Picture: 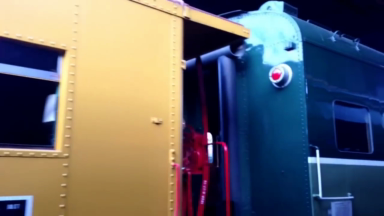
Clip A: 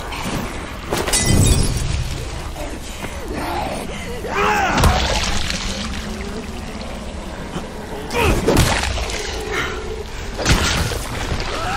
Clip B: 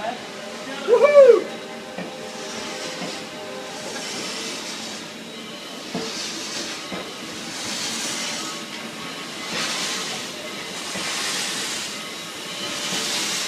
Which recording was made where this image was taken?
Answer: B